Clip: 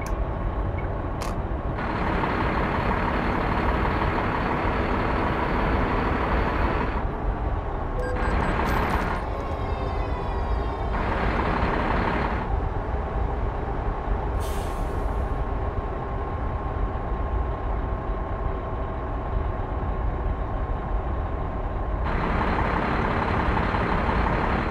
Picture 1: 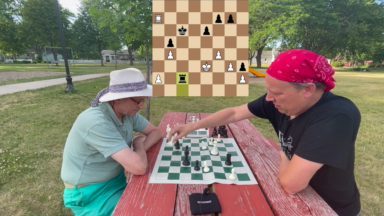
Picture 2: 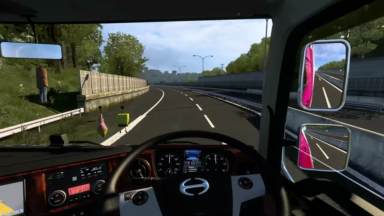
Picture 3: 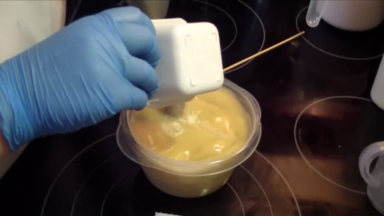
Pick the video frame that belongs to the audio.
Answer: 2